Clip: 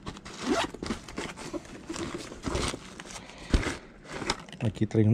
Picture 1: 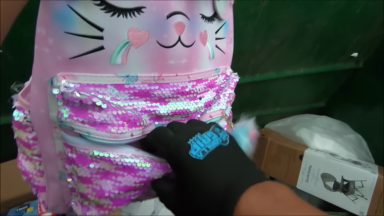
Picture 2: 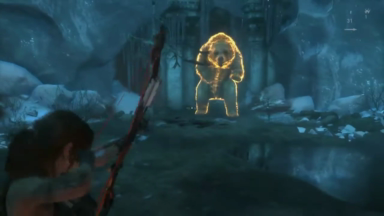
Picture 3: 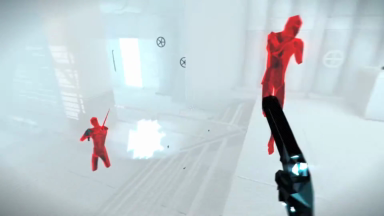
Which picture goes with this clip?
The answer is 1